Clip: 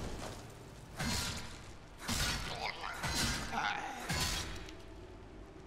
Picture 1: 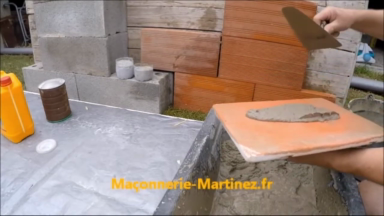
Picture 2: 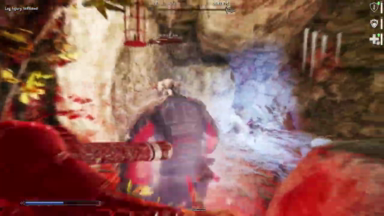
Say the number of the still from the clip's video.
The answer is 2